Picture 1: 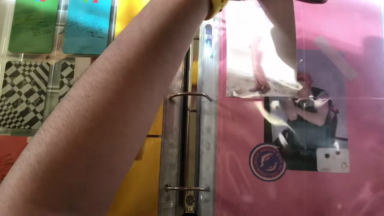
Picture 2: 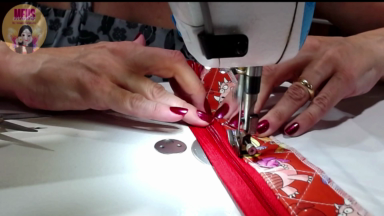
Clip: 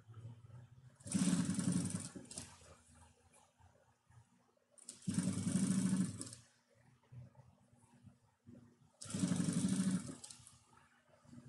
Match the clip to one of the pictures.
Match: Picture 2